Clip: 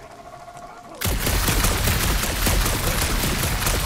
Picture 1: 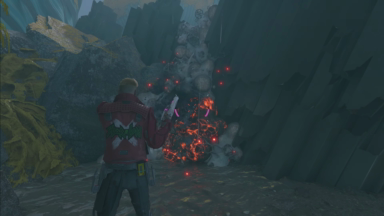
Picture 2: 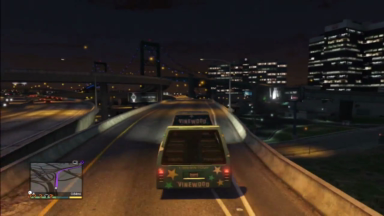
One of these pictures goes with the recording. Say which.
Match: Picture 1